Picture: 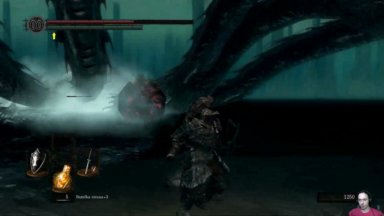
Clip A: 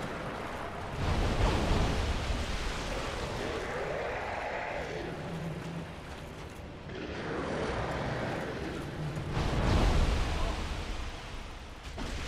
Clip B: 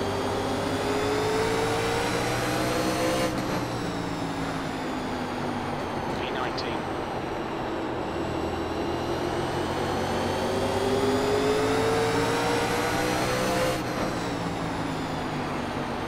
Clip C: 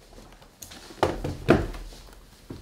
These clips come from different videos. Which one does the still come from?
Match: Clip A